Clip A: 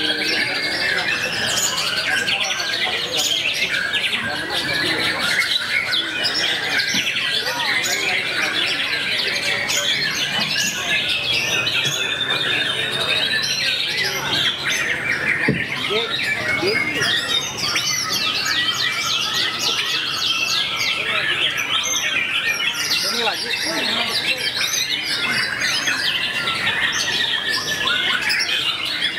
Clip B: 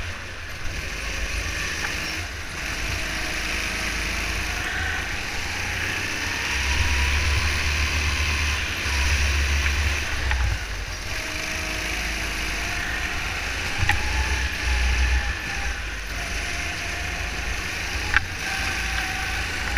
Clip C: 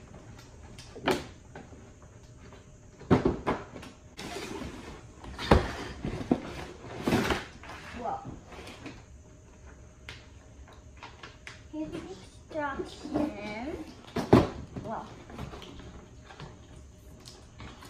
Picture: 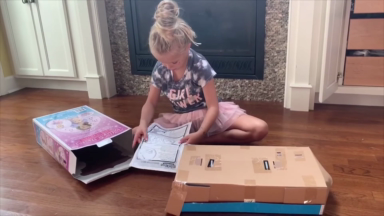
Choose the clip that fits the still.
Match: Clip C